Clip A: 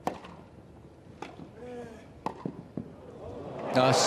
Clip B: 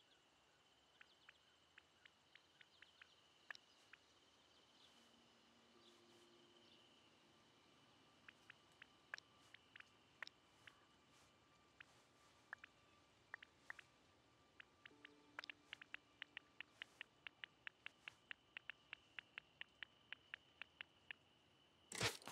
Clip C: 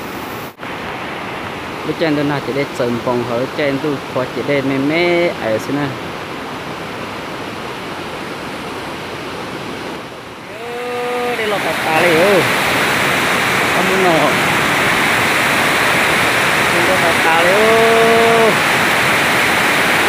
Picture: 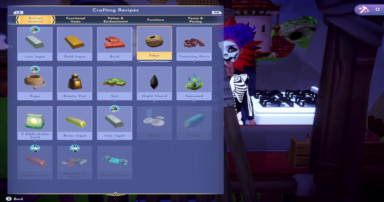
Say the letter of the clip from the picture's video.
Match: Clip B